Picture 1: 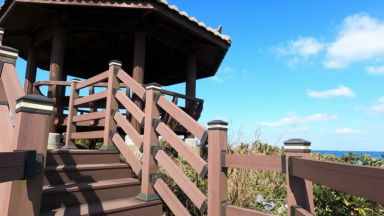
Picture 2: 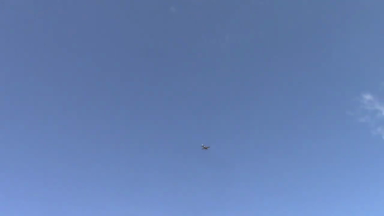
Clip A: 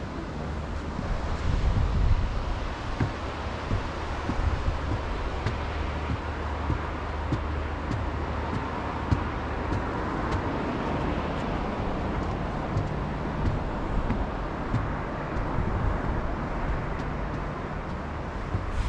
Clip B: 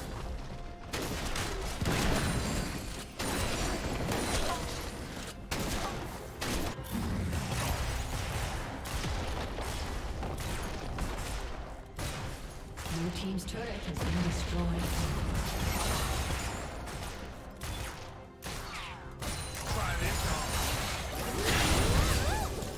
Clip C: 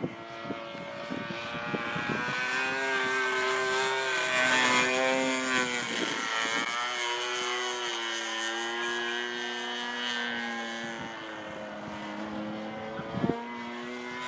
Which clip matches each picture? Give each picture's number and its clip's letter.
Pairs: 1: A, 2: C